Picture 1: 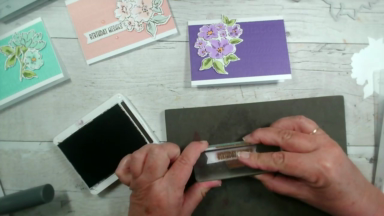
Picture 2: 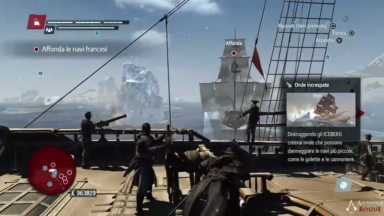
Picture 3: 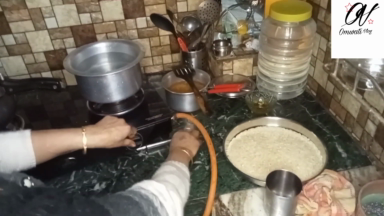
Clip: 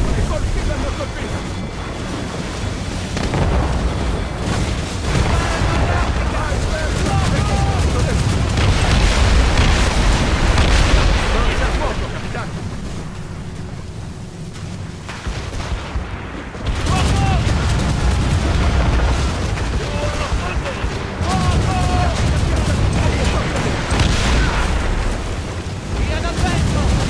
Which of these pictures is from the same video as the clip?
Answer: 2